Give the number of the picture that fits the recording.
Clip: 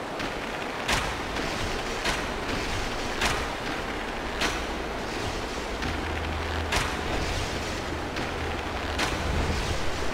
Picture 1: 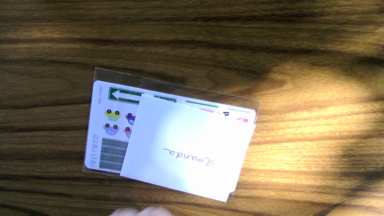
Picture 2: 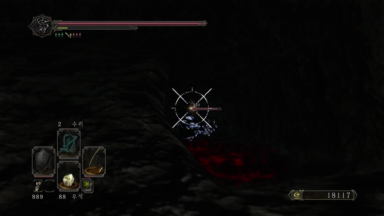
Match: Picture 2